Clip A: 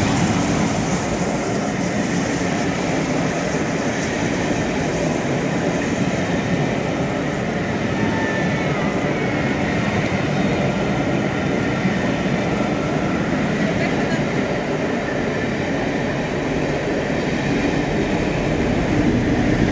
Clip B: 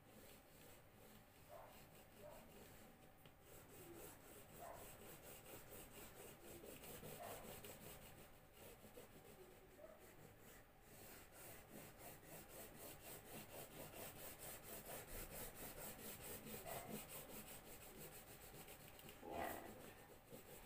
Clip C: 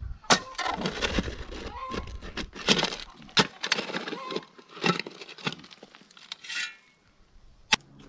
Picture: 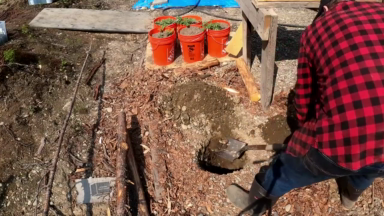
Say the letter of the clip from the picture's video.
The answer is C